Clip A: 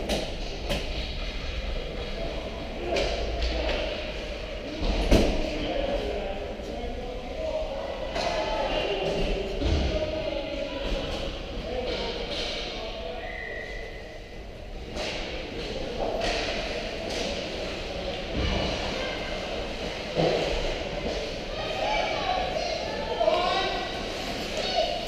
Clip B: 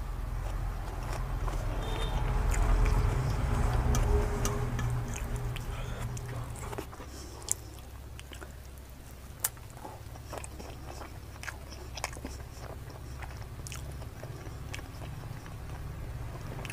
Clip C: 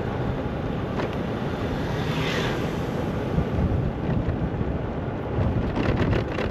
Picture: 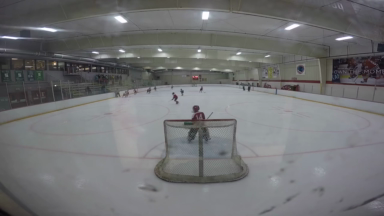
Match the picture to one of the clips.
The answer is A